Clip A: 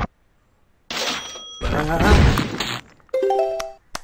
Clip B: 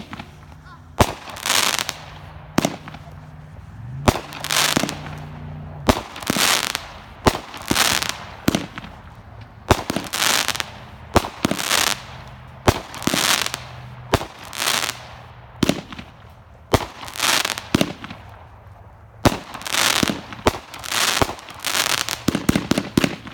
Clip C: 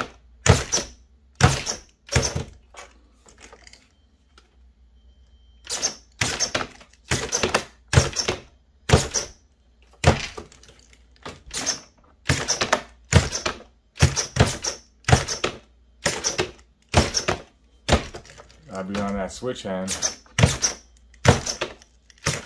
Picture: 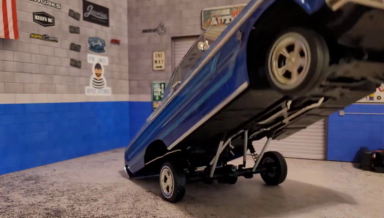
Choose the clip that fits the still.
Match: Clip C